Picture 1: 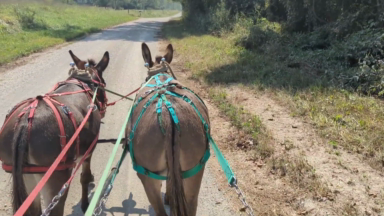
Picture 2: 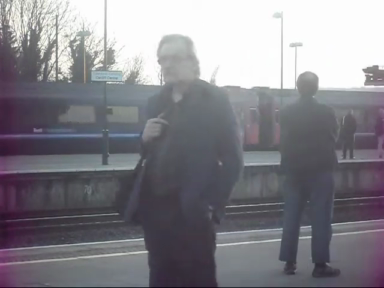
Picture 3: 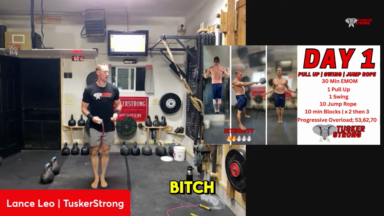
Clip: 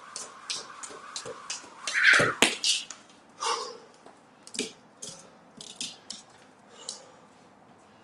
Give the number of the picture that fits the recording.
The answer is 3